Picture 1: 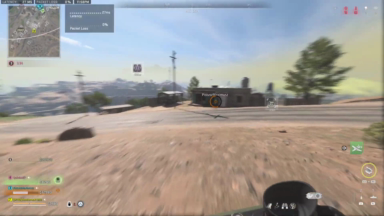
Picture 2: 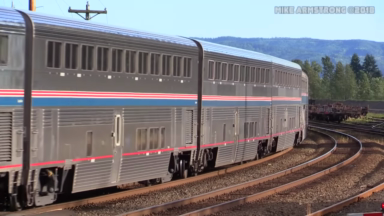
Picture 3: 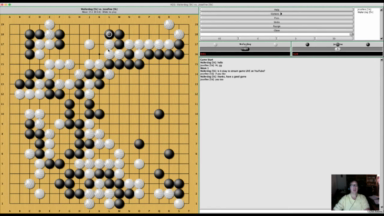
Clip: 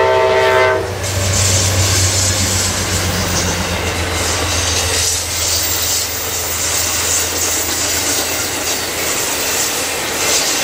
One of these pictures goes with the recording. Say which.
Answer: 2